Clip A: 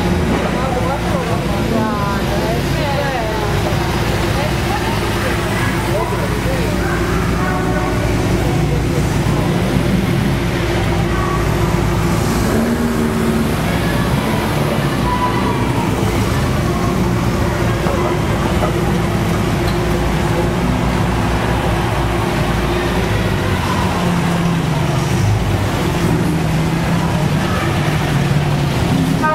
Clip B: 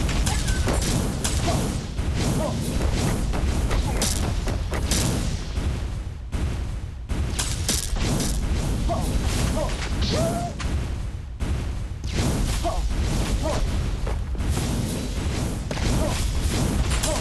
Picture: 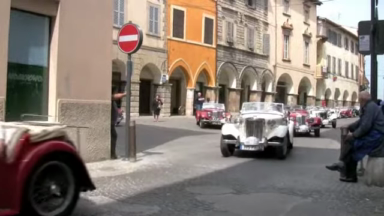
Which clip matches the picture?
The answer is A